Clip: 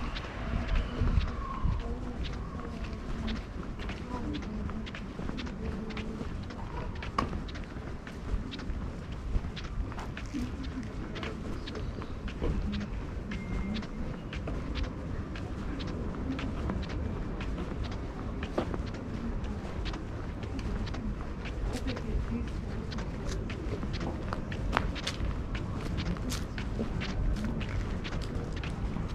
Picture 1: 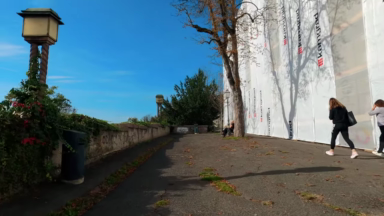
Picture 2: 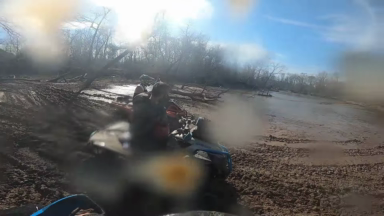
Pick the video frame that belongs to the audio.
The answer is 1